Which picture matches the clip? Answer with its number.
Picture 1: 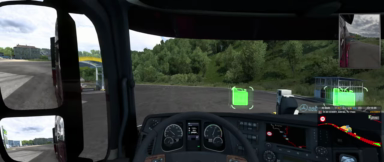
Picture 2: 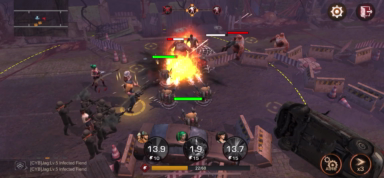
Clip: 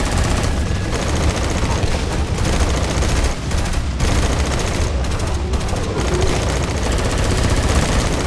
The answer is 2